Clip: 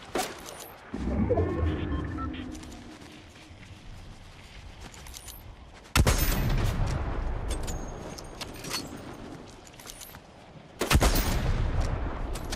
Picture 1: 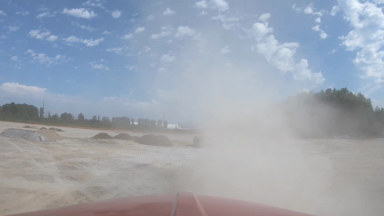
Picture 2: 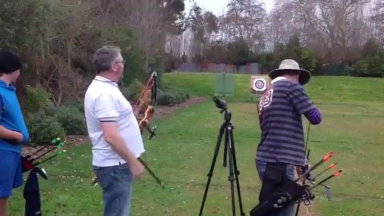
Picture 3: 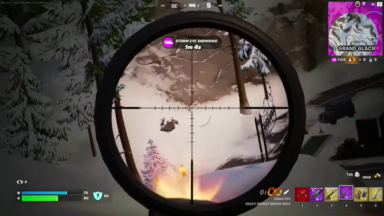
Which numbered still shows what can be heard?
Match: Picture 3